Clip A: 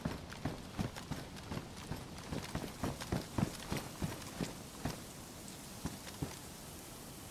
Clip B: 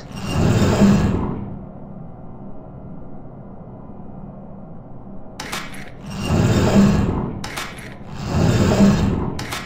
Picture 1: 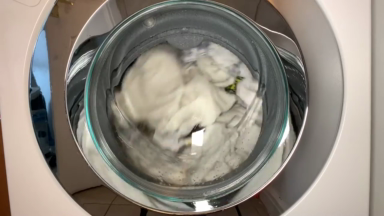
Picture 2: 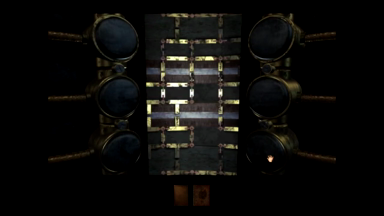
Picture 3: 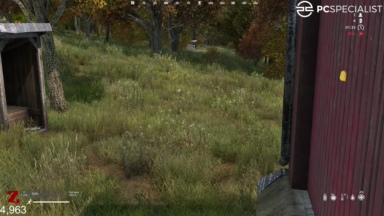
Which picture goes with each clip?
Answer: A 3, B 2